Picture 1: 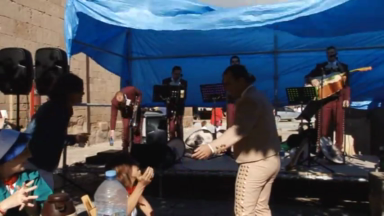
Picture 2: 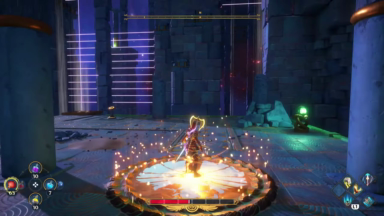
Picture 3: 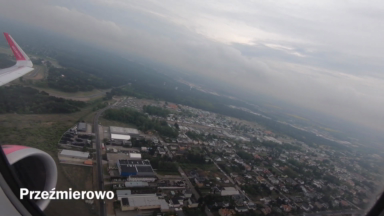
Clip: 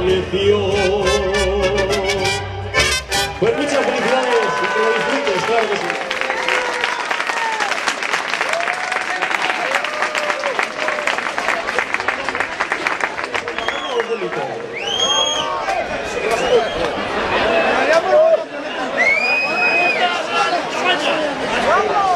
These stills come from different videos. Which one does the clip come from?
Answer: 1